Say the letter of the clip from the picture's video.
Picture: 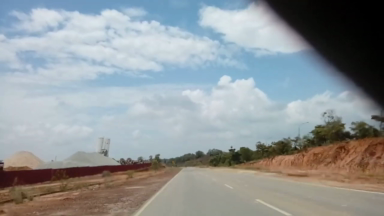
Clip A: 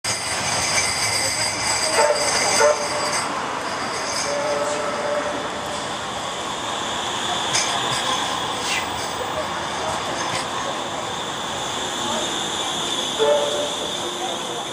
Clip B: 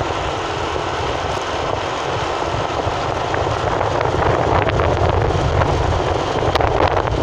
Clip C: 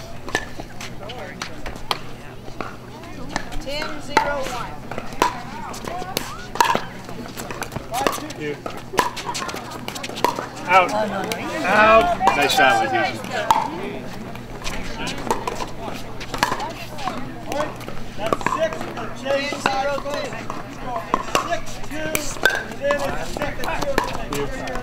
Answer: B